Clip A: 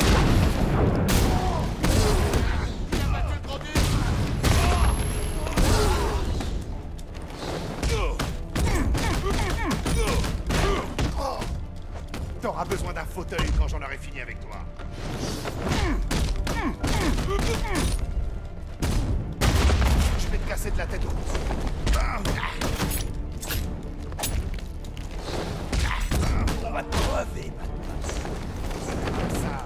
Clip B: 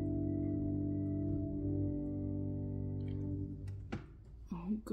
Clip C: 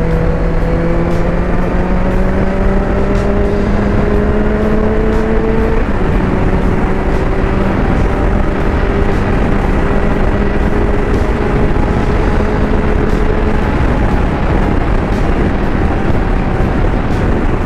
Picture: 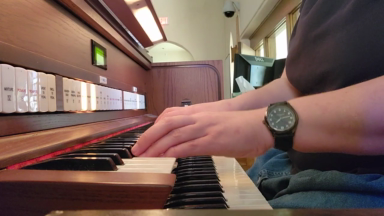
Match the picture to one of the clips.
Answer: B